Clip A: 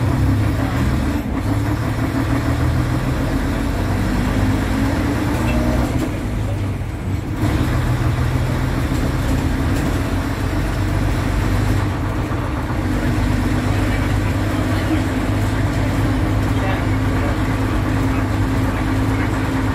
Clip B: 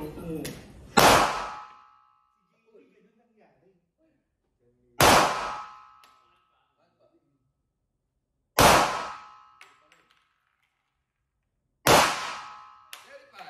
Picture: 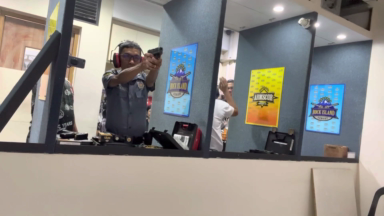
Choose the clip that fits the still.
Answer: B